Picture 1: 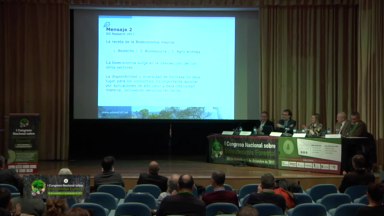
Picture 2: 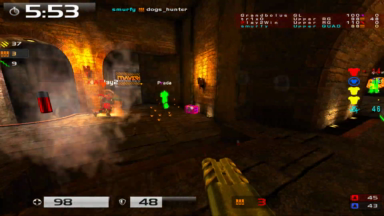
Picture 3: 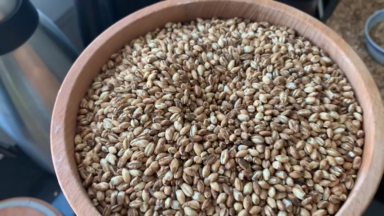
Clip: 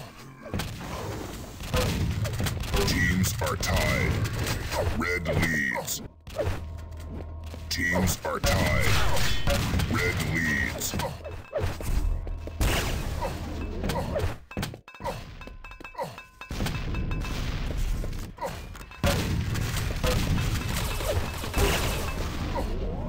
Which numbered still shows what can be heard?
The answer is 2